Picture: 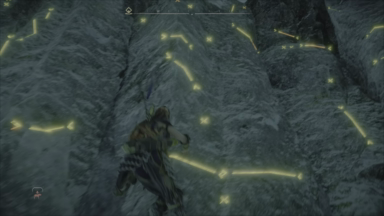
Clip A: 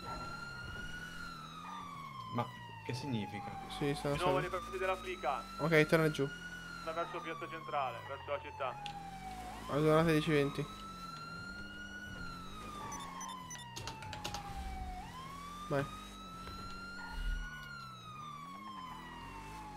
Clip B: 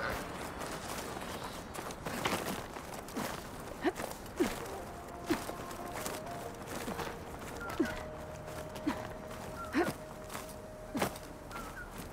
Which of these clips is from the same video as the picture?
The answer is B